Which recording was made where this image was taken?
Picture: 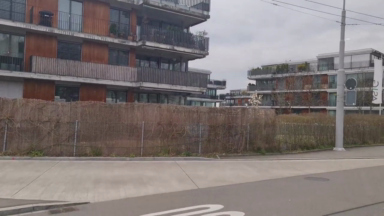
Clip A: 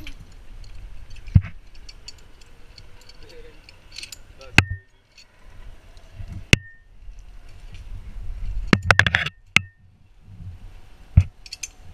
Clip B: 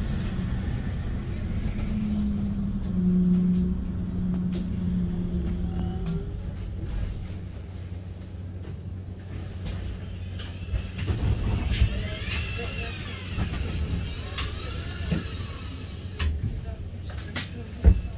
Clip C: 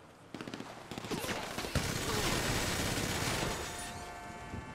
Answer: B